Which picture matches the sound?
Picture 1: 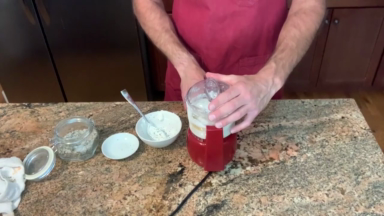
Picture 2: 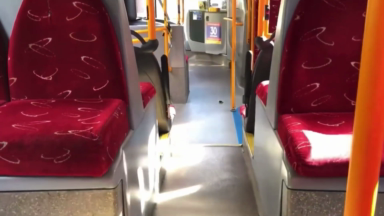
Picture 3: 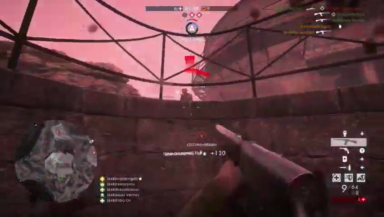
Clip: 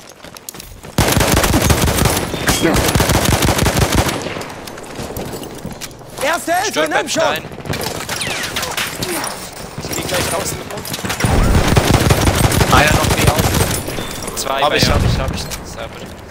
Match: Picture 3